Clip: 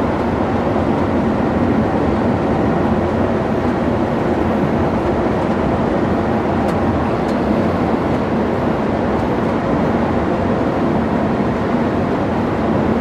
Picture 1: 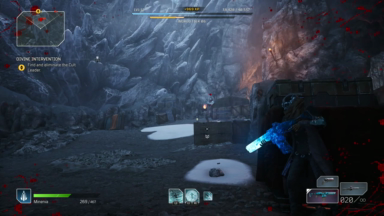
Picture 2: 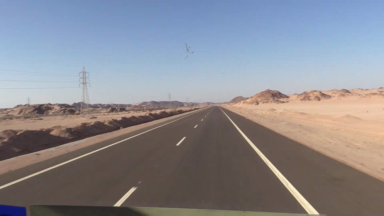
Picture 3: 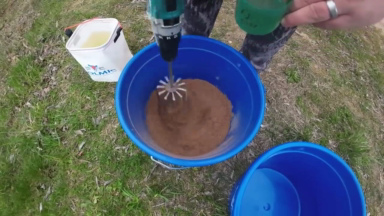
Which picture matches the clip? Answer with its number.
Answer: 2